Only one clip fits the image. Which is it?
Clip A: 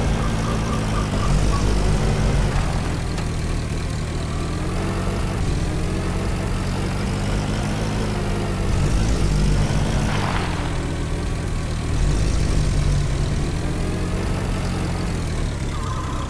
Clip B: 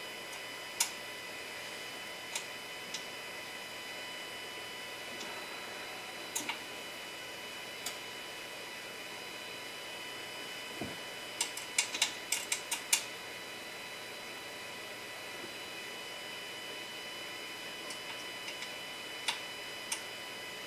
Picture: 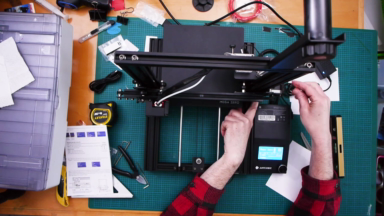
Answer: B